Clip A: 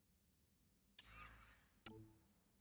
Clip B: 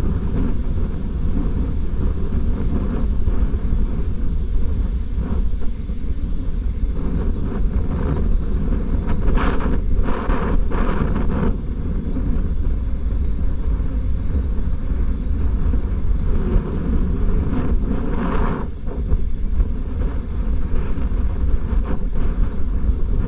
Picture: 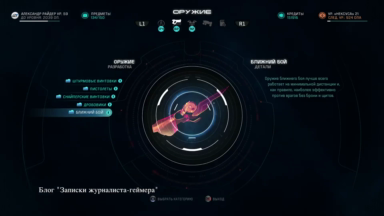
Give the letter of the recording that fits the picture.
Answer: A